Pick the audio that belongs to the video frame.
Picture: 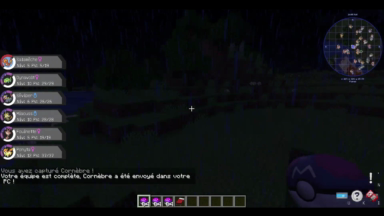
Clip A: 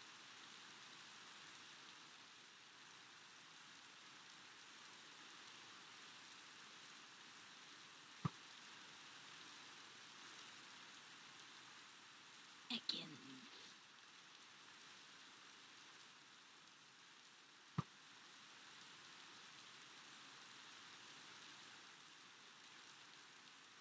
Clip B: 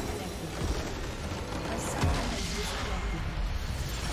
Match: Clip A